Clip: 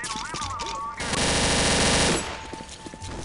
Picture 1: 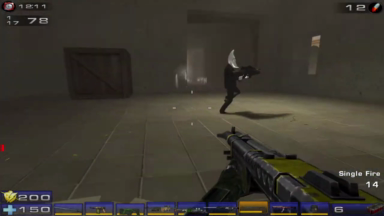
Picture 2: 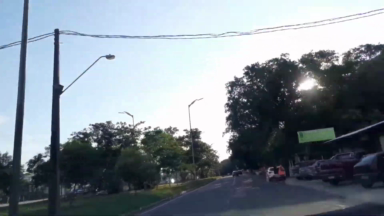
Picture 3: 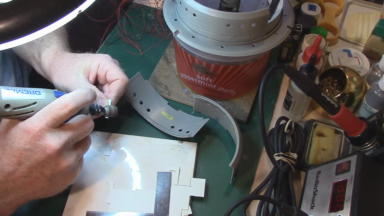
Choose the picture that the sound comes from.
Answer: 1